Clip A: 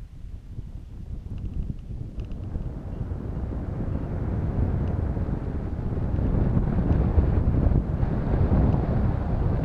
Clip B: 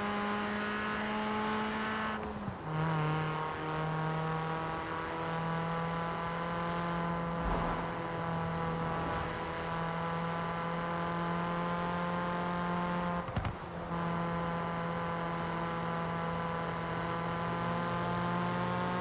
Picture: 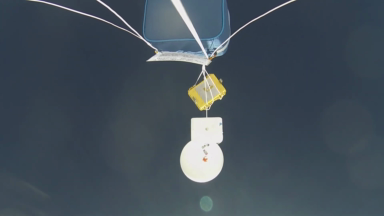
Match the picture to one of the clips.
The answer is A